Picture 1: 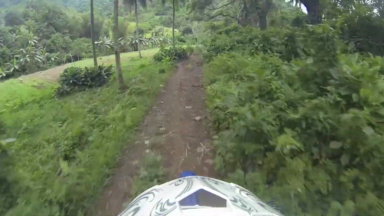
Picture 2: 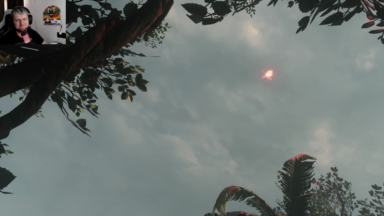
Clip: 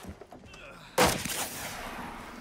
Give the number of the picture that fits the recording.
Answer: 2